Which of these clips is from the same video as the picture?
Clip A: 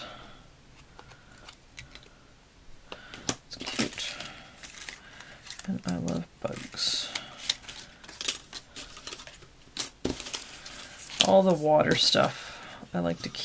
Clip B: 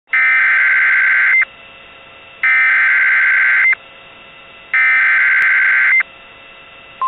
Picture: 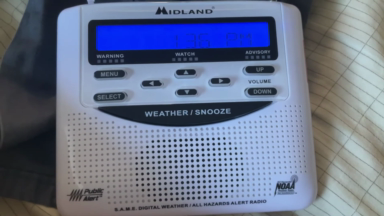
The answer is B